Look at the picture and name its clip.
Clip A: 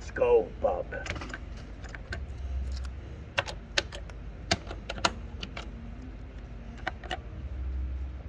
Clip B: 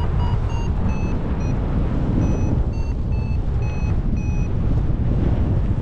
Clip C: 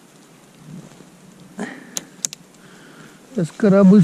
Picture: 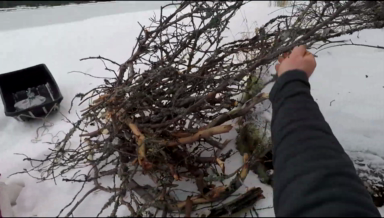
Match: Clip C